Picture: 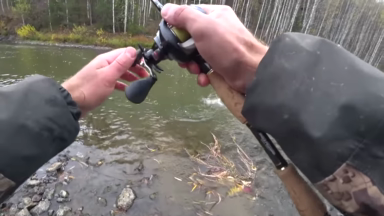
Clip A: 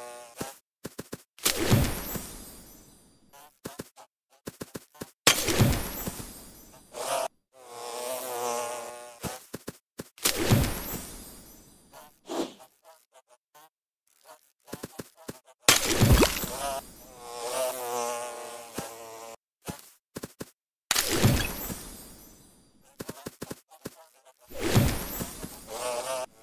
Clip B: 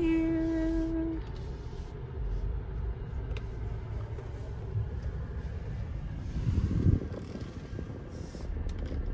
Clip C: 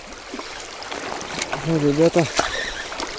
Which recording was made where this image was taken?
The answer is C